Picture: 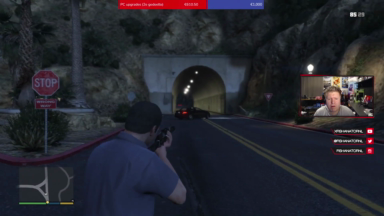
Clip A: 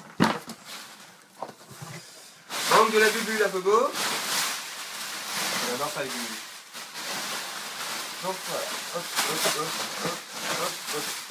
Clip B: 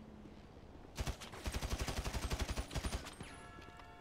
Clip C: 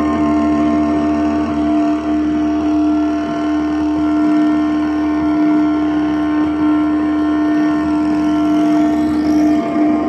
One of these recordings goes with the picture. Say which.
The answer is B